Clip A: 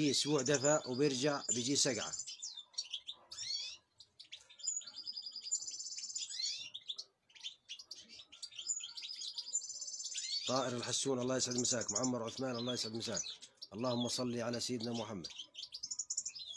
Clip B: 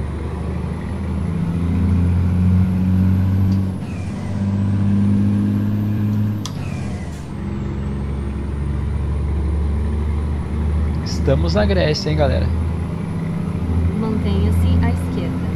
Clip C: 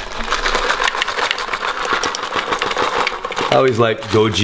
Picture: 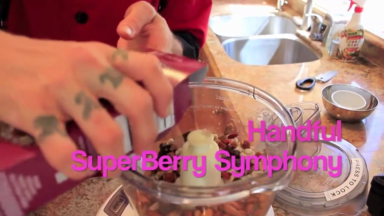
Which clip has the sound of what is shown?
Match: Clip C